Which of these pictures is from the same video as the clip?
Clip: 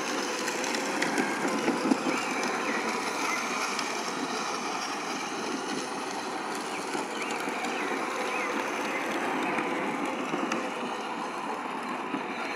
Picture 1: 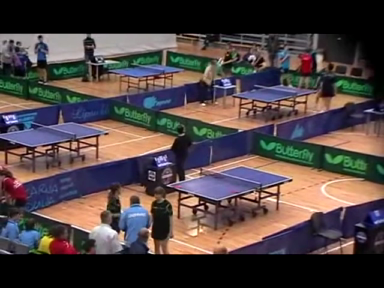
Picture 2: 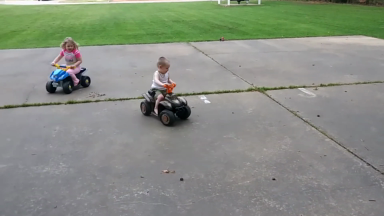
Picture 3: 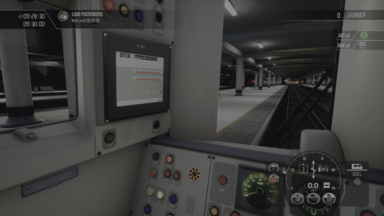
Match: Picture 2